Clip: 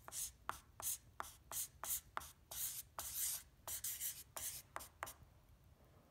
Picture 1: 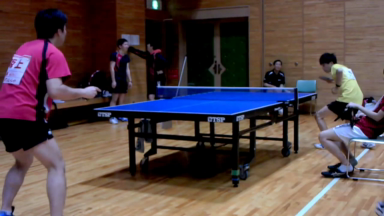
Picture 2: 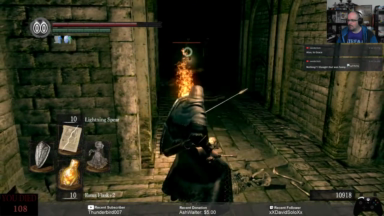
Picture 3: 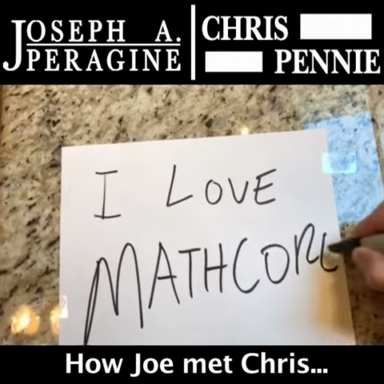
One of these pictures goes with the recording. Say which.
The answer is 3